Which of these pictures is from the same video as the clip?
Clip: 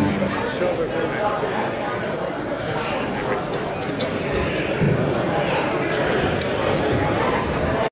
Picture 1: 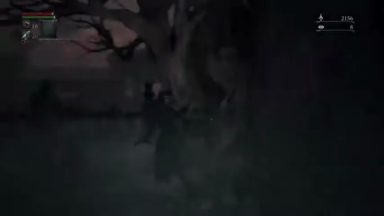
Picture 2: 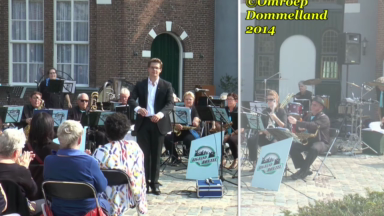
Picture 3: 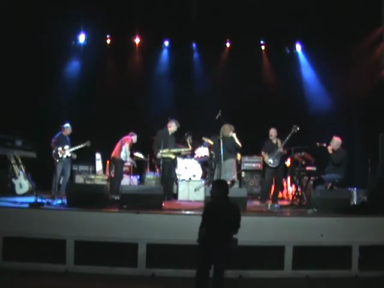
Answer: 3